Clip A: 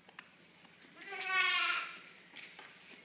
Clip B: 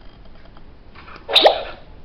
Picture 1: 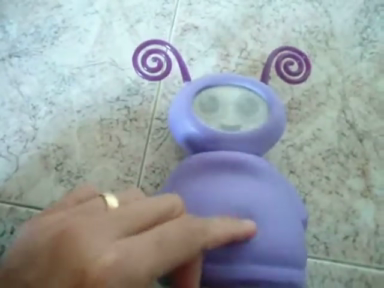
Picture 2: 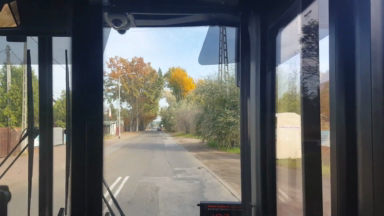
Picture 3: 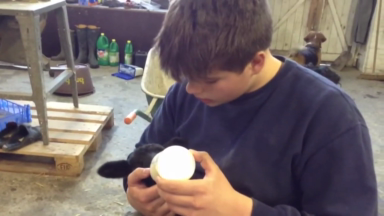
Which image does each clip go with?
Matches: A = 3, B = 1